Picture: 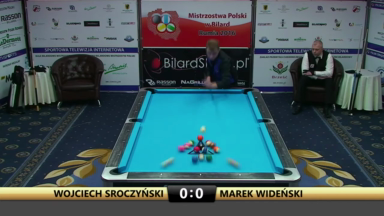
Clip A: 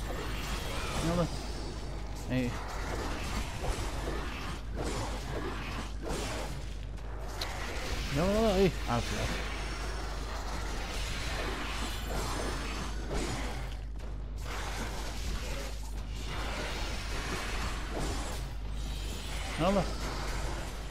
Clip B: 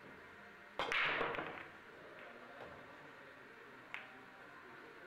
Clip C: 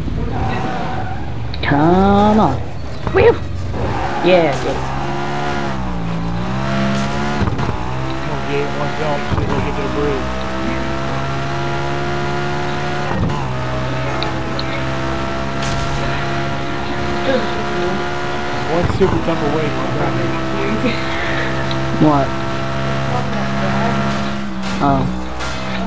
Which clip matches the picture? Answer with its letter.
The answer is B